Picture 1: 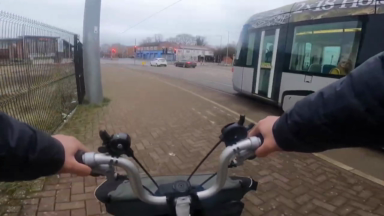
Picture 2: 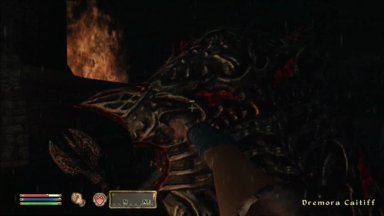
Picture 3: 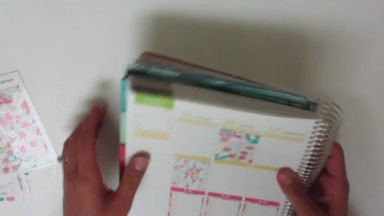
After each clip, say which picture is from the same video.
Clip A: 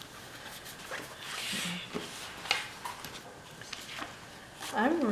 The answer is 3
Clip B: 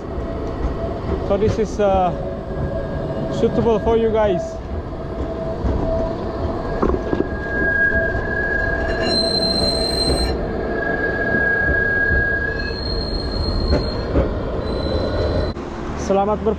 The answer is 1